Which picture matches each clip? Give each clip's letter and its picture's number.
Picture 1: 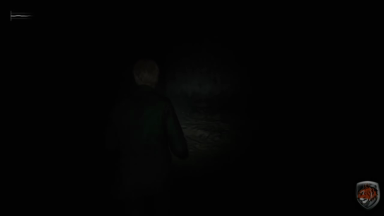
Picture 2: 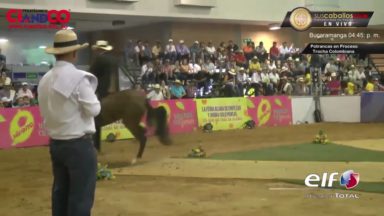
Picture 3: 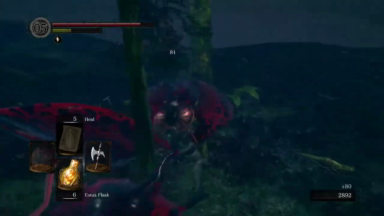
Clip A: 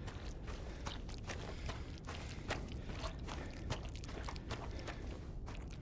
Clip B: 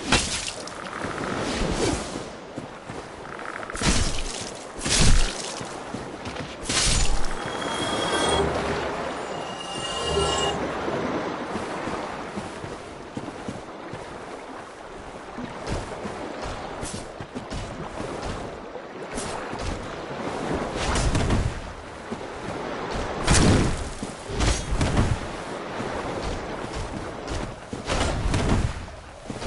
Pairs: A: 1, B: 3